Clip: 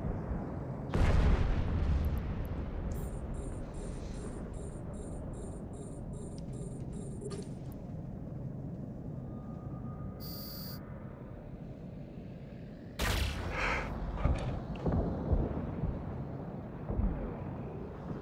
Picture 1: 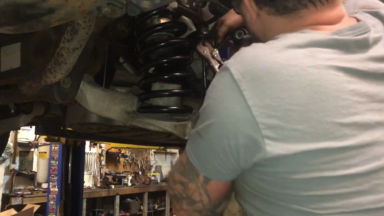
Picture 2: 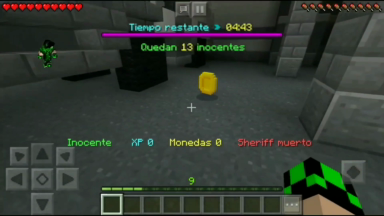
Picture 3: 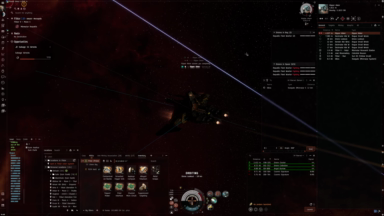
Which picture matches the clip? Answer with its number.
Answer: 3